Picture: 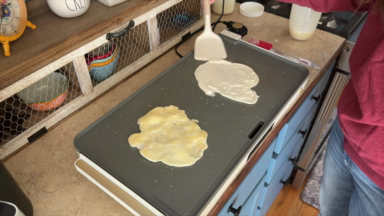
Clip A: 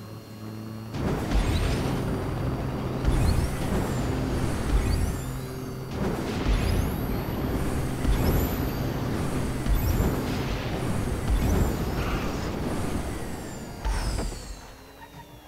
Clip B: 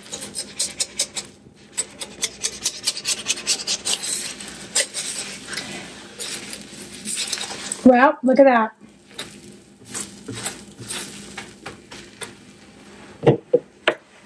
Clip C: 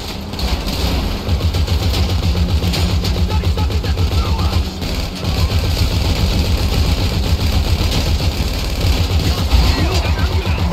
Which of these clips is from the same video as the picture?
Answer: B